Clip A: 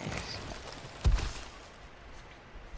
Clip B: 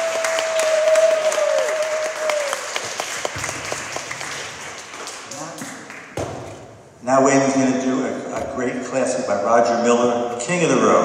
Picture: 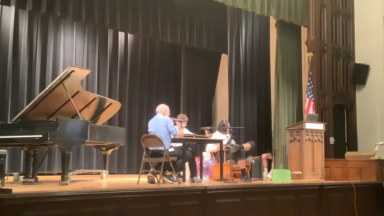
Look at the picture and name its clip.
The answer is B